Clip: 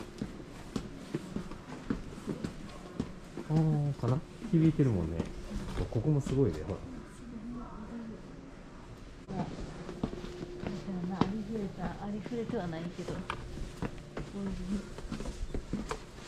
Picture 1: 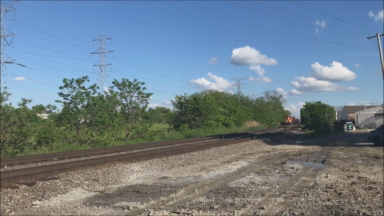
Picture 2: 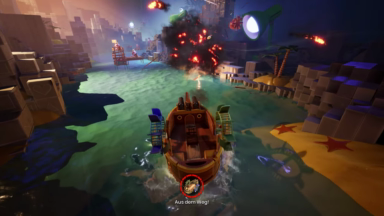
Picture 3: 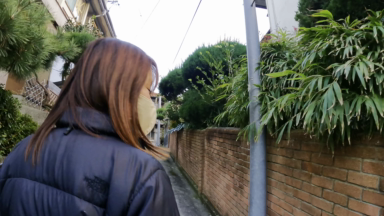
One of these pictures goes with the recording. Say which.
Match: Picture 3